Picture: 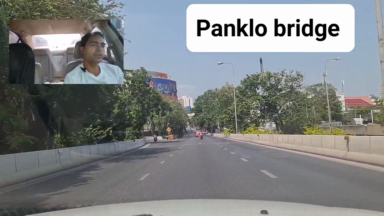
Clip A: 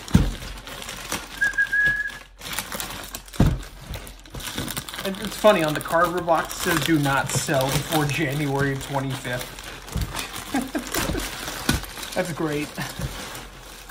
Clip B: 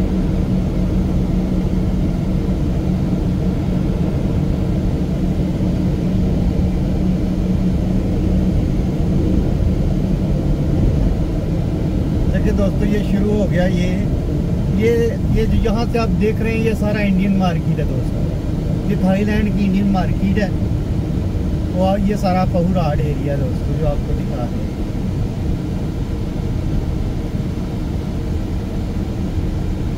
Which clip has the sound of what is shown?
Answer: B